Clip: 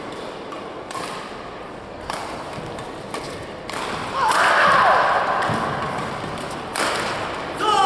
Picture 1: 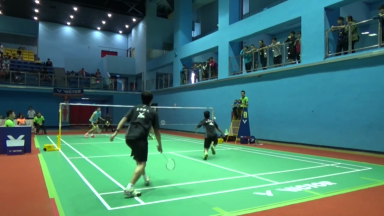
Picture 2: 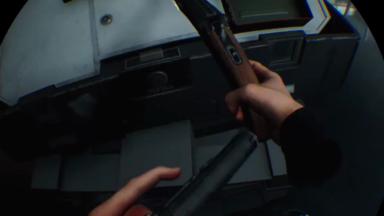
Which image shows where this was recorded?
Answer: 1